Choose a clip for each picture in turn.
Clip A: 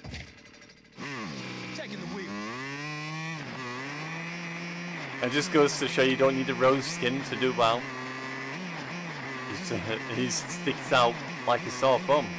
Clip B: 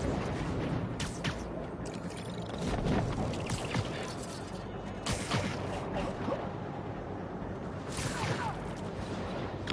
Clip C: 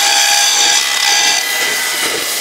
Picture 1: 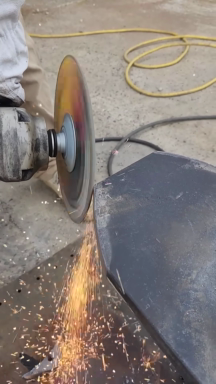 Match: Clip C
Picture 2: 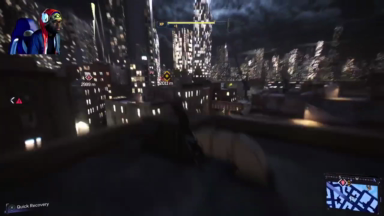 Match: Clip B